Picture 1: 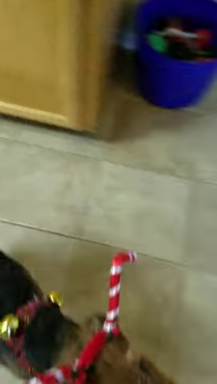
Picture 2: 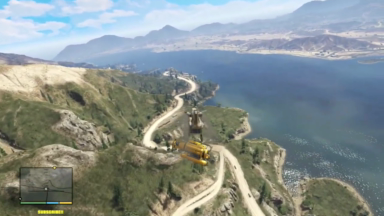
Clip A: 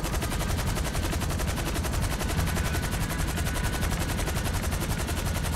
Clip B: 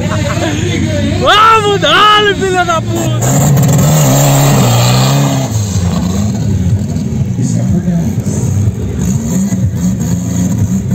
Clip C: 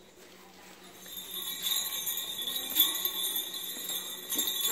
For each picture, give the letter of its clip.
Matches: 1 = C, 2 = A